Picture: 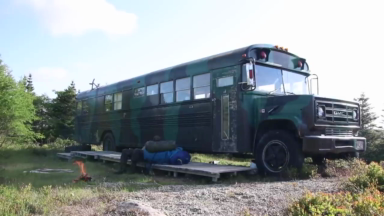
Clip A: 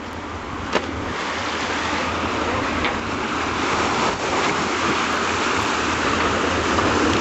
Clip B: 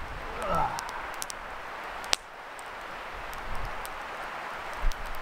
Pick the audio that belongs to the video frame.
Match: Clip B